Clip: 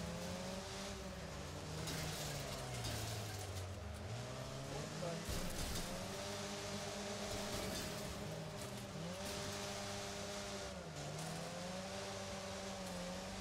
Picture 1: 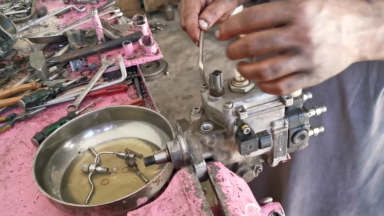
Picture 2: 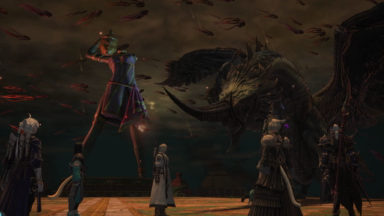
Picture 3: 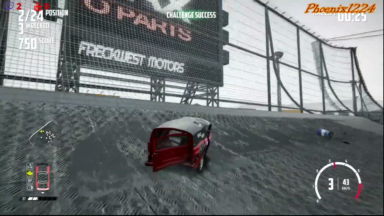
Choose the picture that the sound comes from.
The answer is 3